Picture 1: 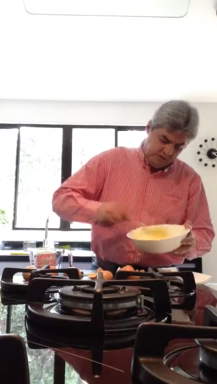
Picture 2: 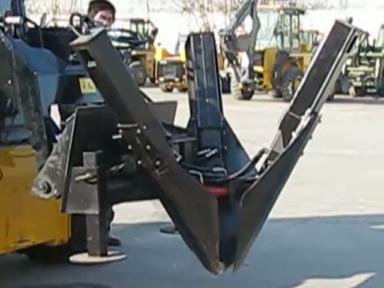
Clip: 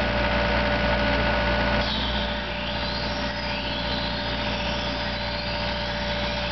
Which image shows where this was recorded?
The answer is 2